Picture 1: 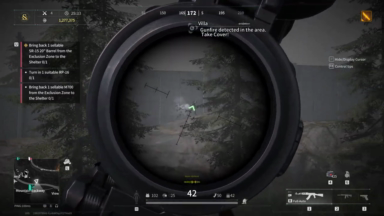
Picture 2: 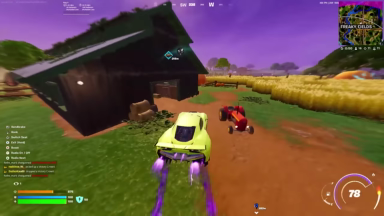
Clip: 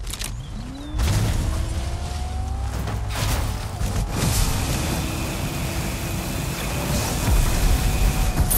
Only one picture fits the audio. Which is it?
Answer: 2